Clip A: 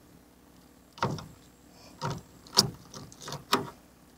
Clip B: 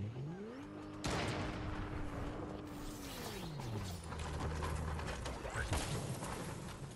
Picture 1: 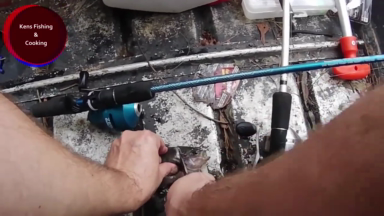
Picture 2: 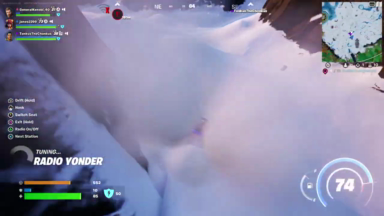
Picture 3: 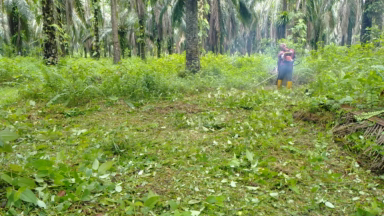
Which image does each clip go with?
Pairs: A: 1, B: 2